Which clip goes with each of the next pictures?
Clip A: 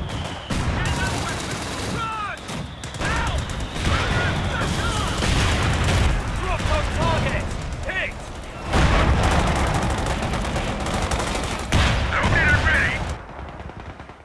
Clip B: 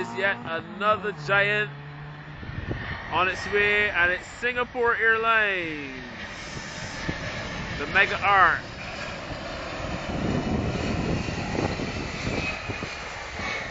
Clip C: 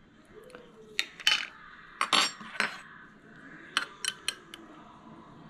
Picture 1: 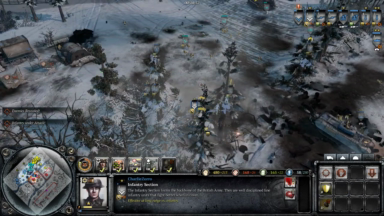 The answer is A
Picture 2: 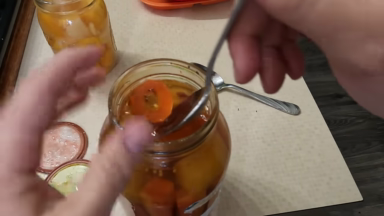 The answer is C